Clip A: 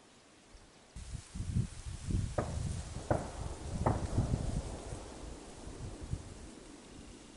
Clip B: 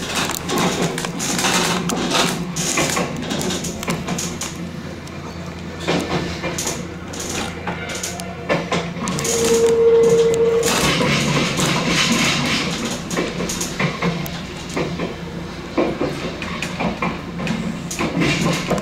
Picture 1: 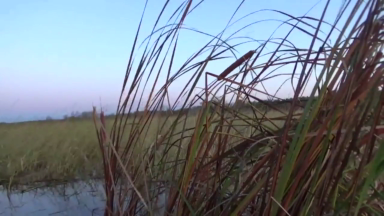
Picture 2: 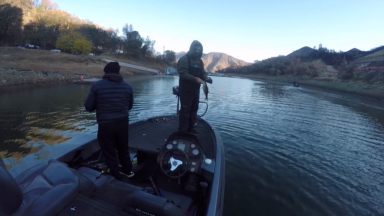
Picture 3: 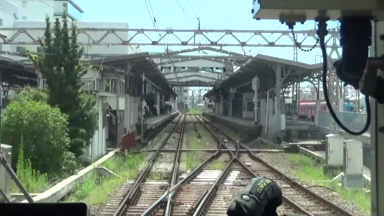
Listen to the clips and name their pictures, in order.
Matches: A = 1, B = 3